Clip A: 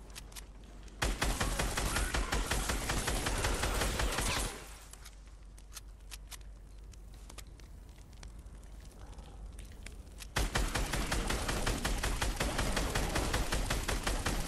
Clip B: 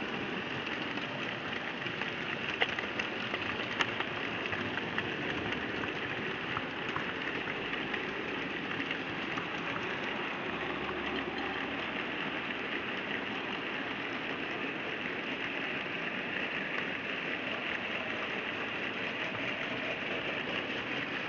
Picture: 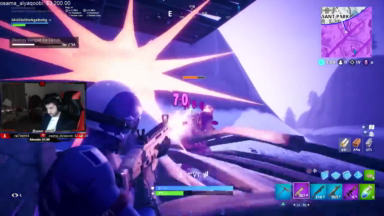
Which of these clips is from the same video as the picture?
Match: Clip A